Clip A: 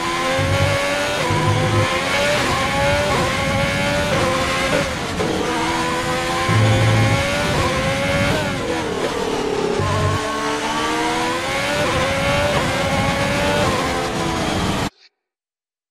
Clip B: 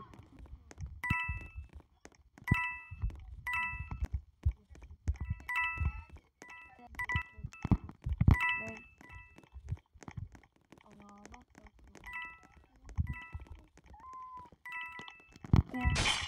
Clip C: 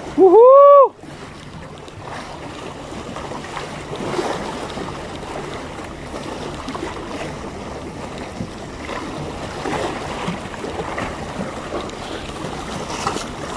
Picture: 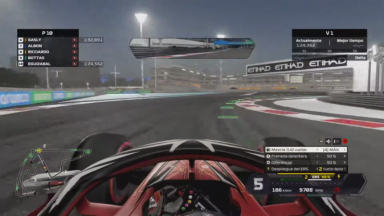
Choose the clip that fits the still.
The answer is A